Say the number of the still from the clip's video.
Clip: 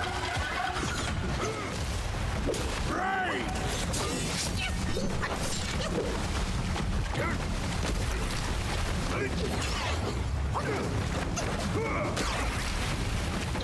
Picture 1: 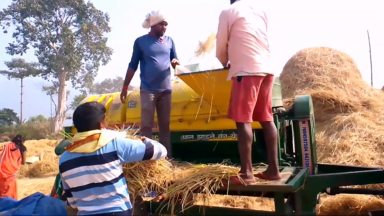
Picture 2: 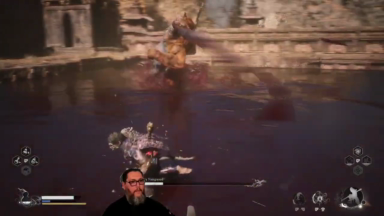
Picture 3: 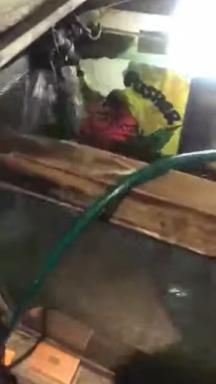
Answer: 2